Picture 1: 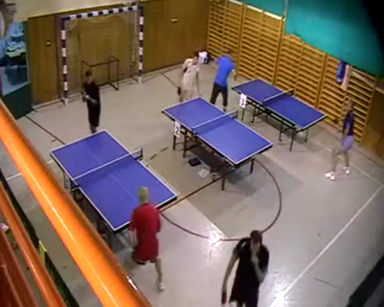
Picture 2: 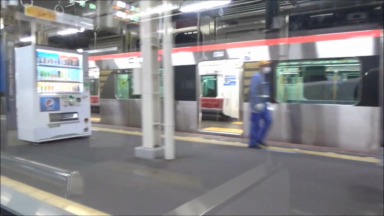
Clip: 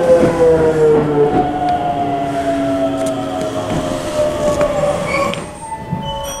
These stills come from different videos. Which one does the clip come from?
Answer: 2